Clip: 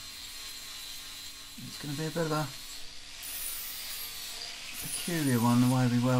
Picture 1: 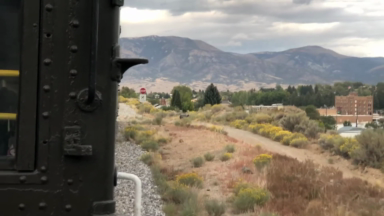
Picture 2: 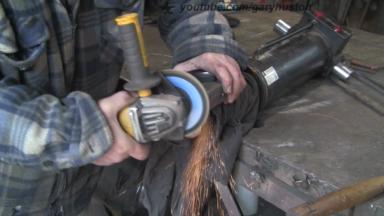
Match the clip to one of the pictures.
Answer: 2